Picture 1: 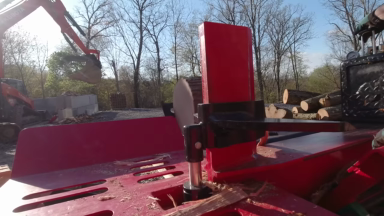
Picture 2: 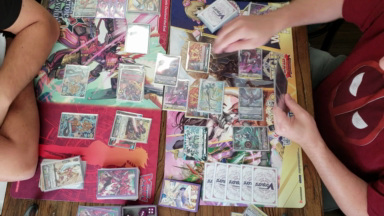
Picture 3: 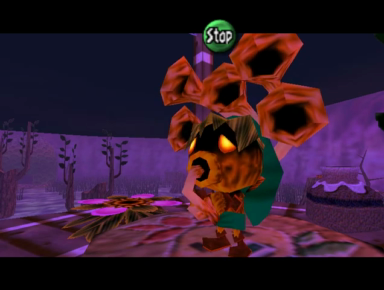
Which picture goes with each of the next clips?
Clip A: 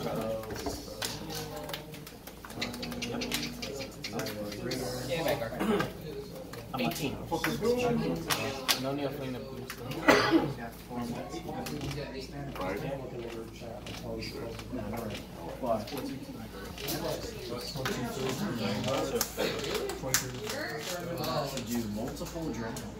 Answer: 2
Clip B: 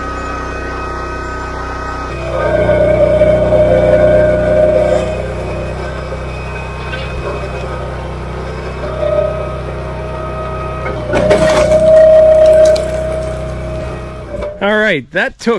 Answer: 1